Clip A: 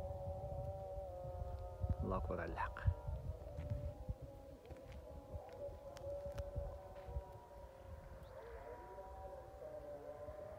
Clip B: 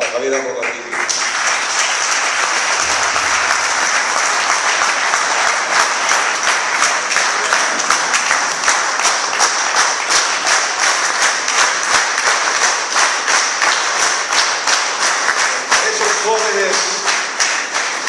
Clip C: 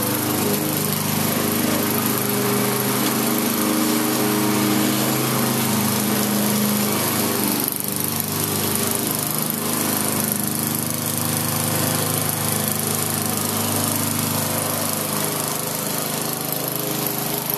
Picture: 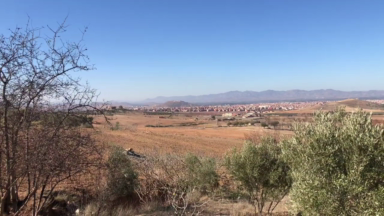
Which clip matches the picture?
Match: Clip A